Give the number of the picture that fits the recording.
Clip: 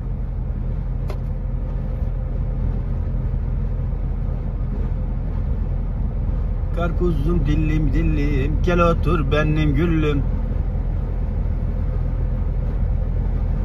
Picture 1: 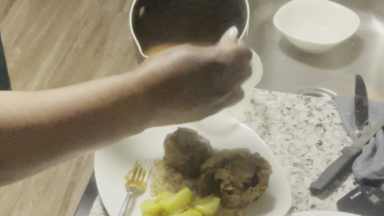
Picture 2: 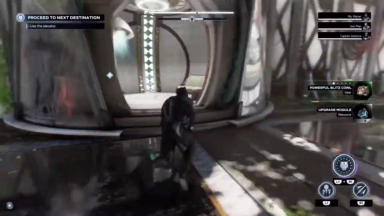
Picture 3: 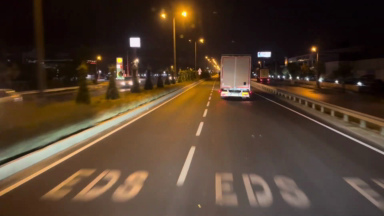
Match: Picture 3